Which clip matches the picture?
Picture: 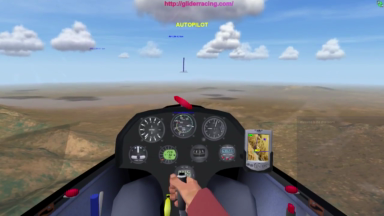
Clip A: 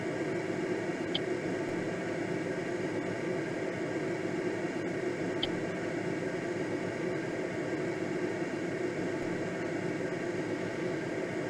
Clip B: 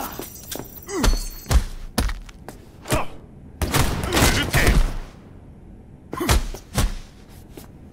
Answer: A